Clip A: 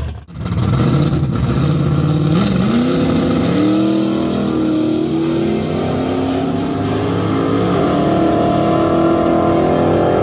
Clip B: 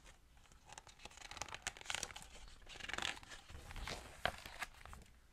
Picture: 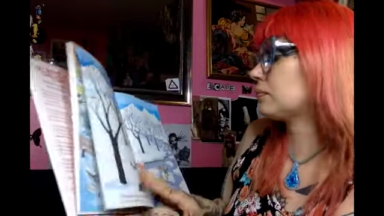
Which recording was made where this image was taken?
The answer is B